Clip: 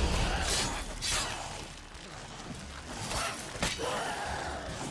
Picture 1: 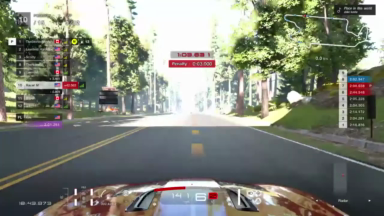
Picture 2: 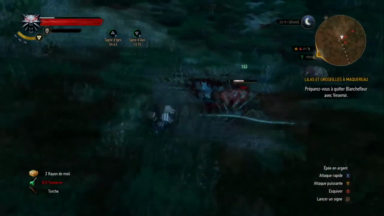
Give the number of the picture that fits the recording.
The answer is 2